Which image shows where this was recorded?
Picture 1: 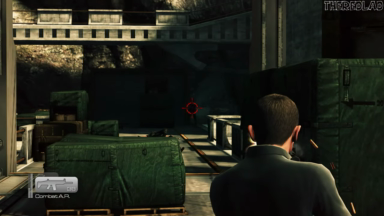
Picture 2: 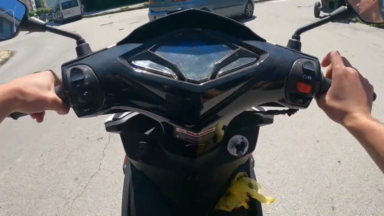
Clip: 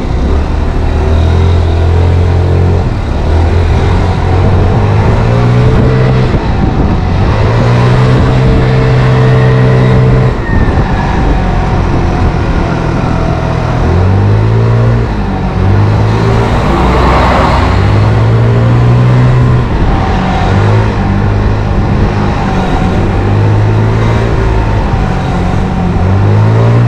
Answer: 2